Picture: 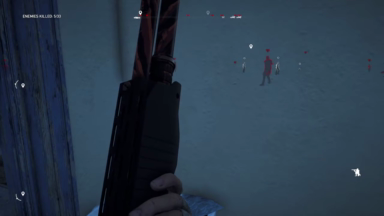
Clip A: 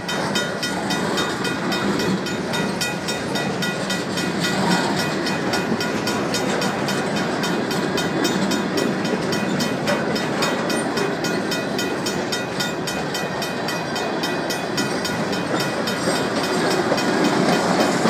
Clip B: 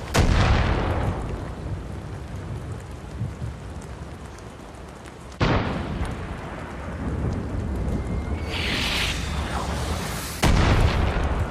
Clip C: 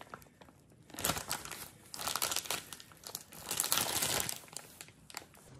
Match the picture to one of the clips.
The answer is B